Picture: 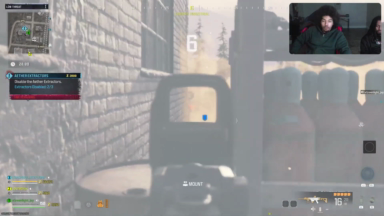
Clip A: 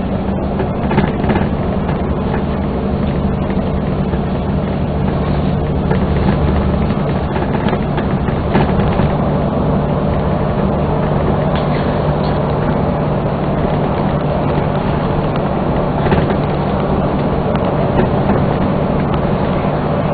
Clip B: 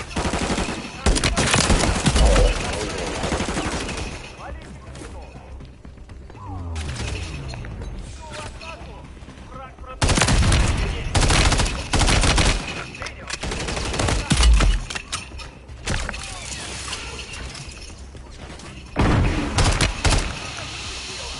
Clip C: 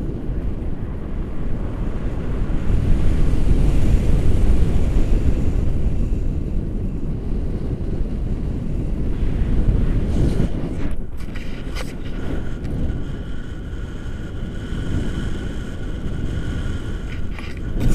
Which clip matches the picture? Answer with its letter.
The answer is B